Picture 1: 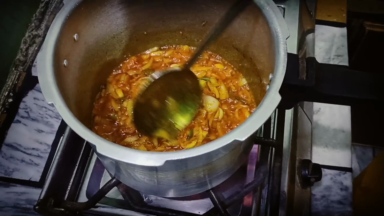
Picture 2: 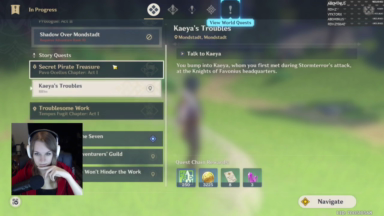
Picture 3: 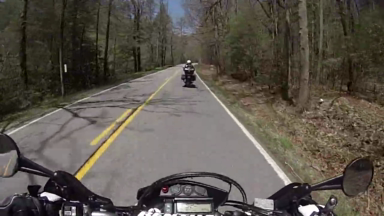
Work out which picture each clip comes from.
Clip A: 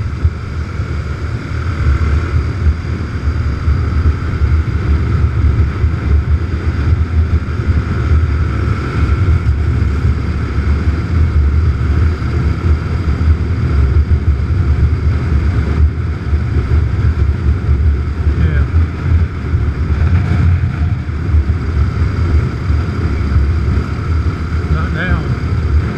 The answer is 3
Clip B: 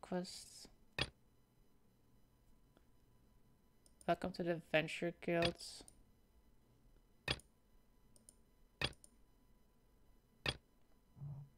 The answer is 2